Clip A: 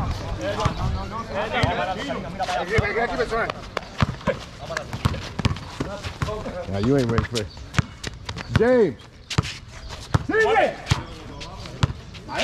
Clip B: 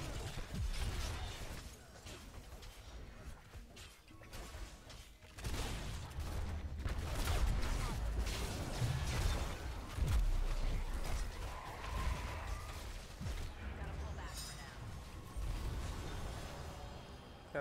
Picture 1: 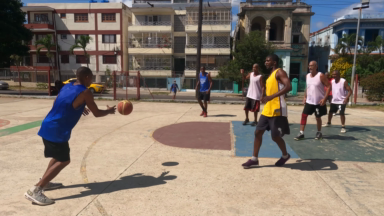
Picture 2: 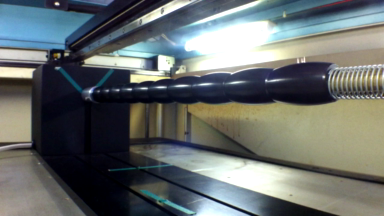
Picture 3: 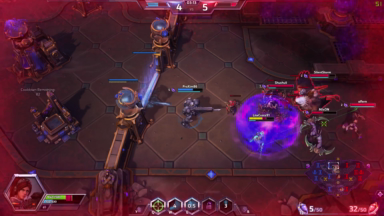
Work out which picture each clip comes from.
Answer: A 1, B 3